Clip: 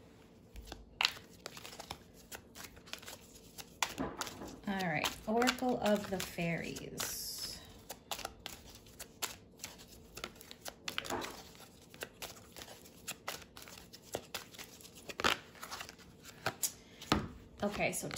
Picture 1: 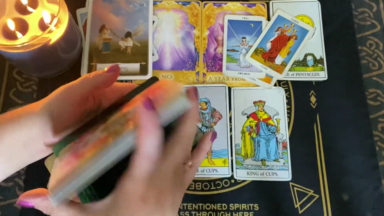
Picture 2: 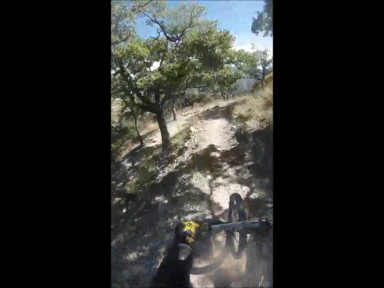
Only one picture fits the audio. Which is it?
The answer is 1